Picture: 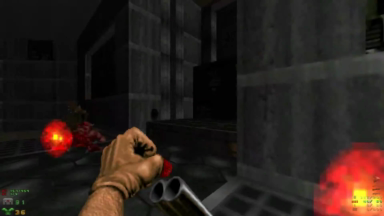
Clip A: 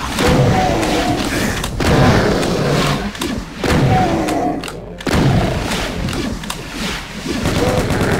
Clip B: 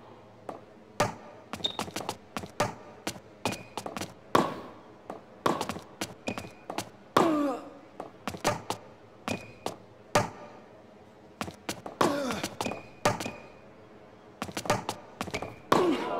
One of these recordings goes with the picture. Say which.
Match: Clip A